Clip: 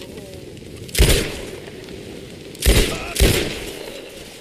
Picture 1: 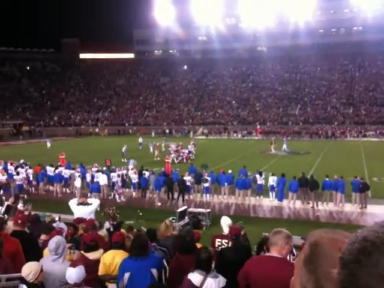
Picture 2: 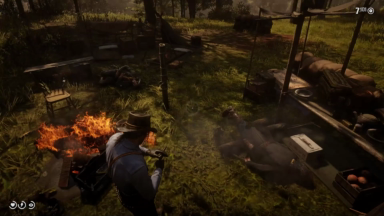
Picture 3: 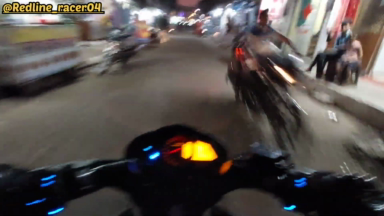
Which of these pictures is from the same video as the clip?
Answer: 2